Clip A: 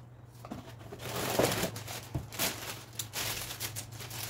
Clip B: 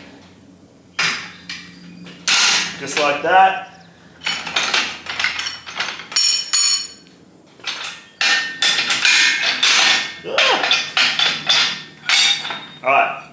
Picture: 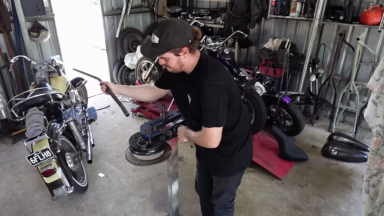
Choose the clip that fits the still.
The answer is B